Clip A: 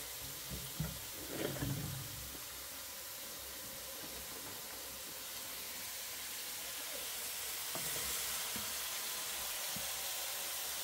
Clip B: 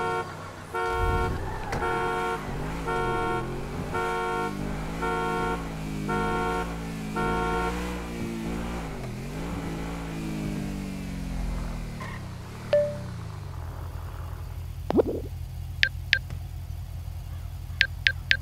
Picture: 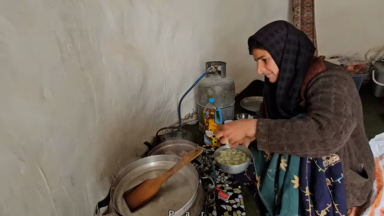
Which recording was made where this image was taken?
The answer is A